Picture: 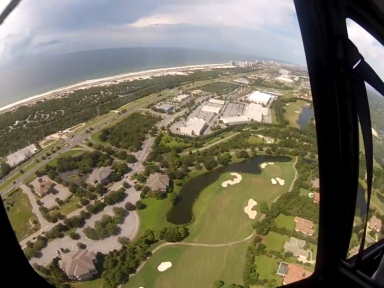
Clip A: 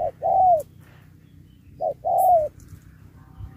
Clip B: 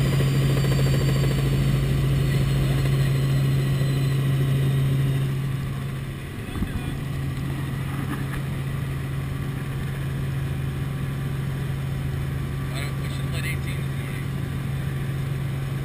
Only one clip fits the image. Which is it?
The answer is B